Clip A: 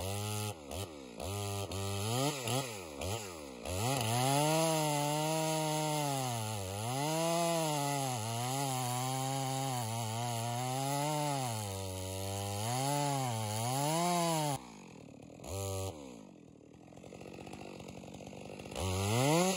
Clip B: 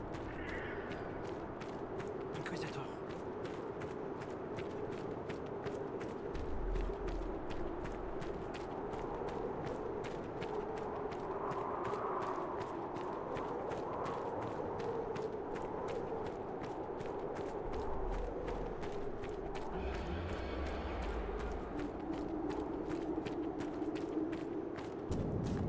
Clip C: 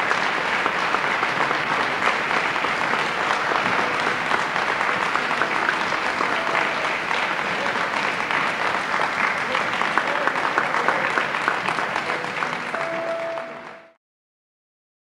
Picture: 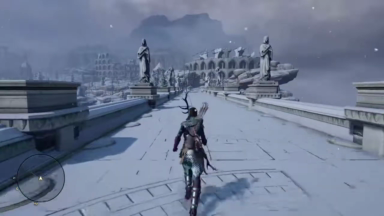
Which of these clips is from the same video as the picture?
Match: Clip B